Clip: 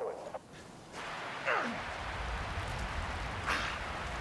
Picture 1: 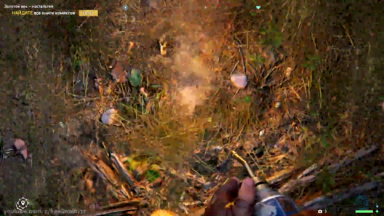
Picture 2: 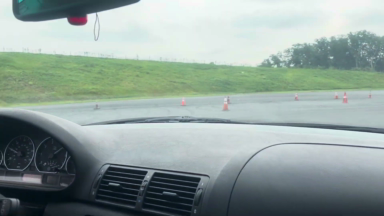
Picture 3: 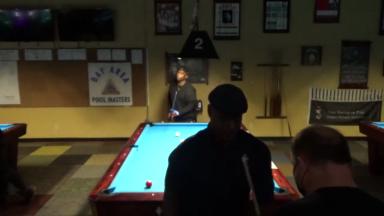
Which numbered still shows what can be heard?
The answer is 1